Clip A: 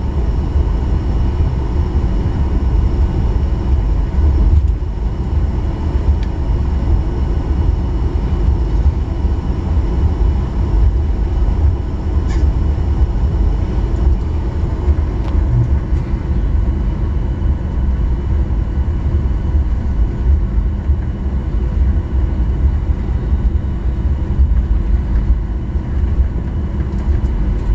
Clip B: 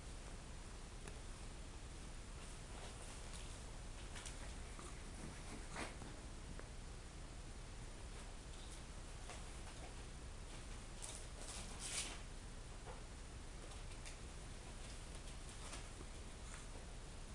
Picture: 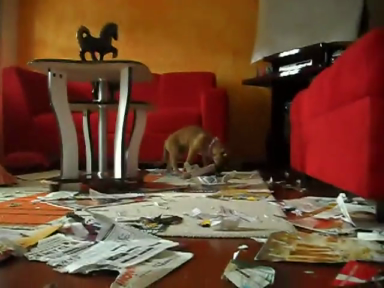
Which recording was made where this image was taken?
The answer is B